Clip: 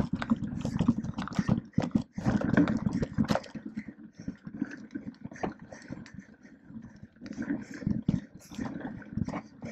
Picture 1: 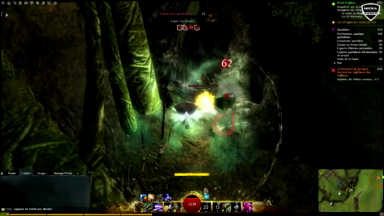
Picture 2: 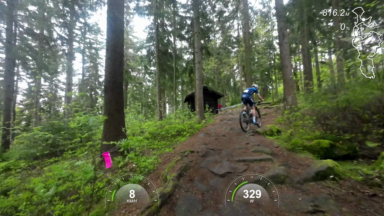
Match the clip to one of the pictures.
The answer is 2